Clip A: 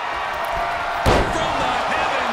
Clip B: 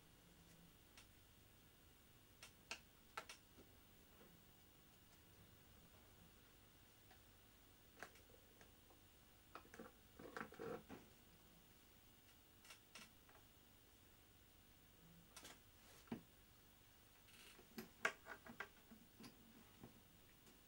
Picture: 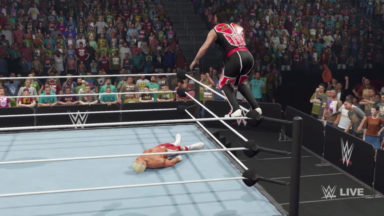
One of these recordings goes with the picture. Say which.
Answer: A